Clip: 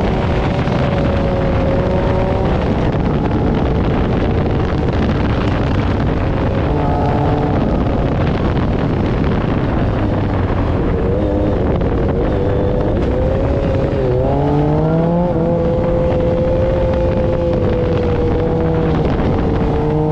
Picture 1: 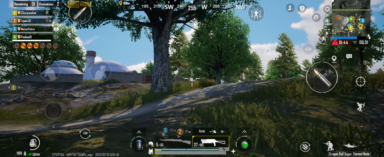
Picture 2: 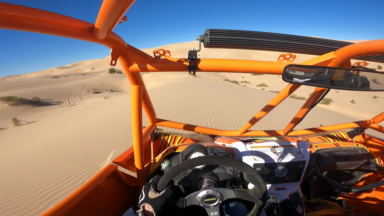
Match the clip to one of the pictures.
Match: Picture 2